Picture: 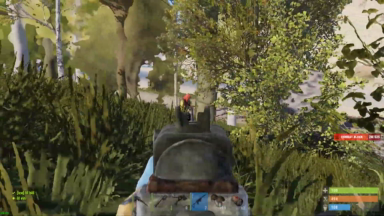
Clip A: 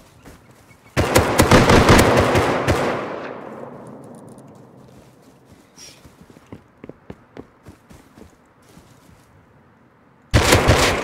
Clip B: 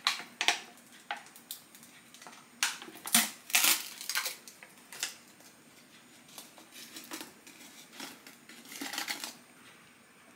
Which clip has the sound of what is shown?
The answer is A